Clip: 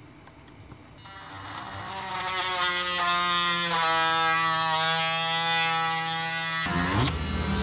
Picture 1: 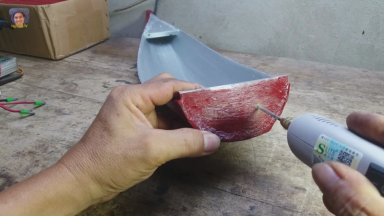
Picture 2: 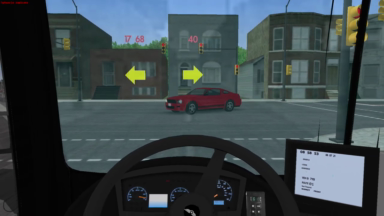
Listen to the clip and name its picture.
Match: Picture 1